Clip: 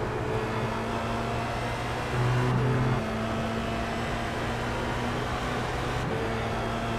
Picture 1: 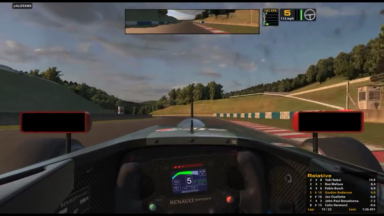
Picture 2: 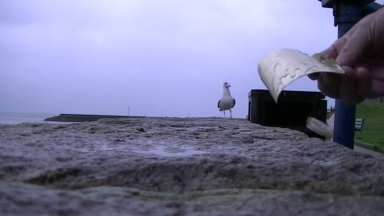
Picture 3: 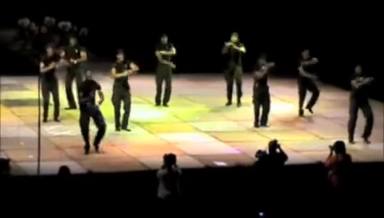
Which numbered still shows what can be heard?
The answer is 1